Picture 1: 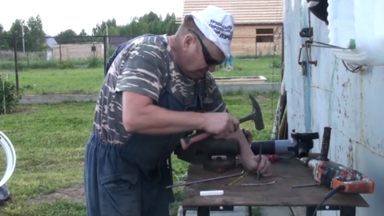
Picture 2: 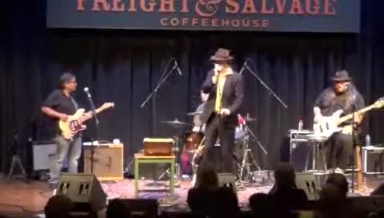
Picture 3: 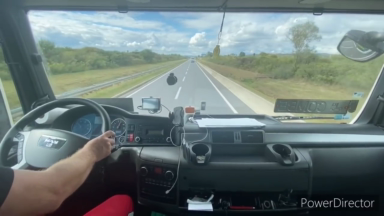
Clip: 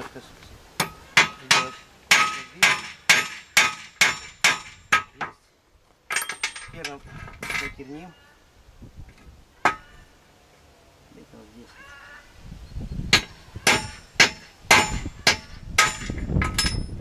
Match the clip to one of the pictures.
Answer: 1